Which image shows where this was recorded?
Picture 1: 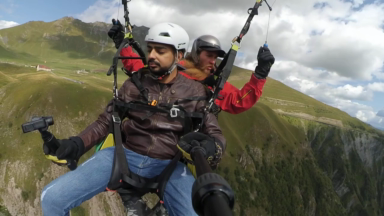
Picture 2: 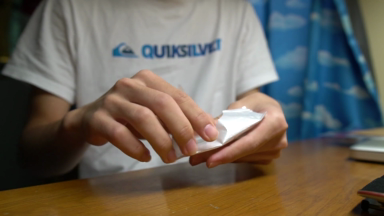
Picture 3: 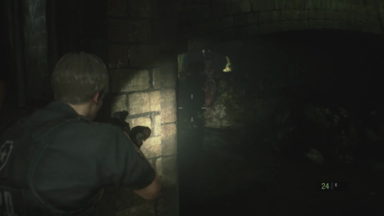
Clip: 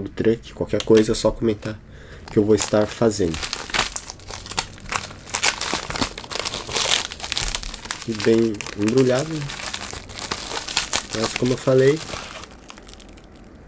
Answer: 2